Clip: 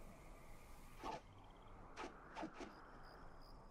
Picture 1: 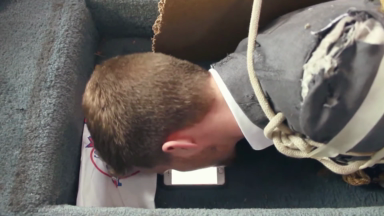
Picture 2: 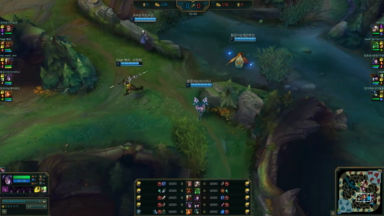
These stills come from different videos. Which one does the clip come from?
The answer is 2